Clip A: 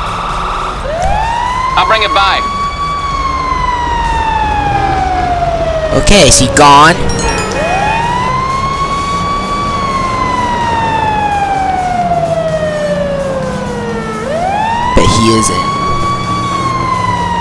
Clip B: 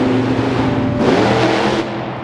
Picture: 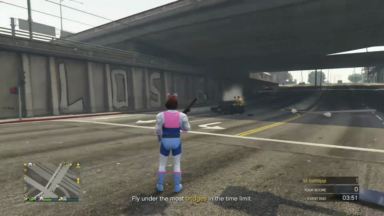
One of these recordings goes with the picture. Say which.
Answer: A